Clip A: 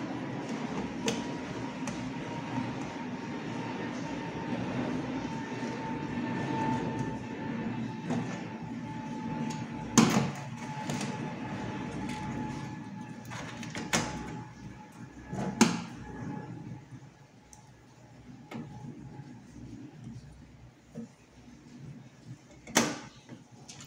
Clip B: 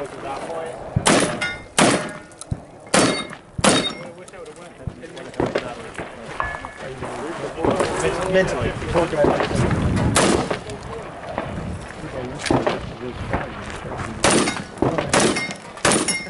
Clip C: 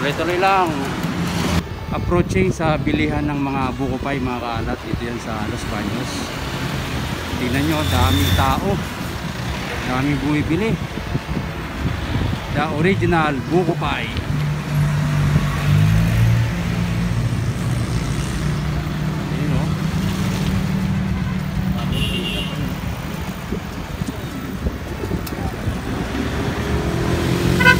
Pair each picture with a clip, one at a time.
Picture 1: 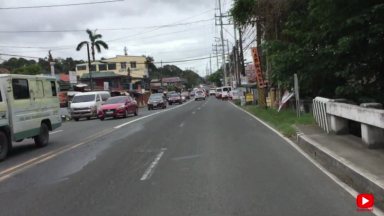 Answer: C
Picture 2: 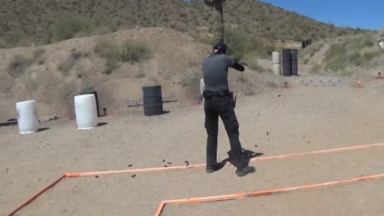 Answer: B